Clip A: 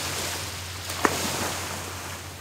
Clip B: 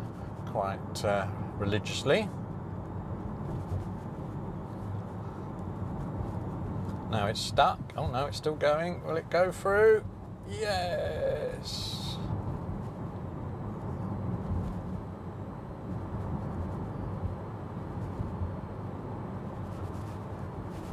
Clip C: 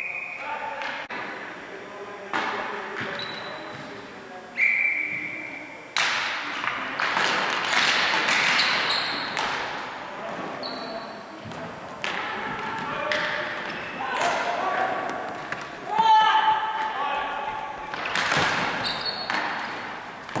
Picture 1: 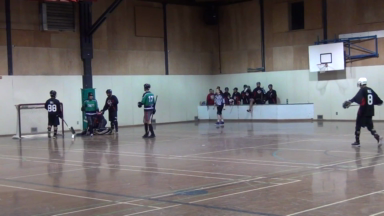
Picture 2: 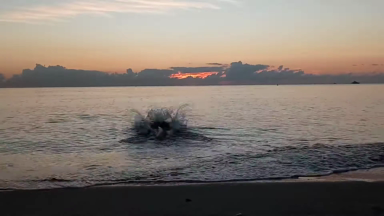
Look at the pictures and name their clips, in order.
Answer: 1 C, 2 A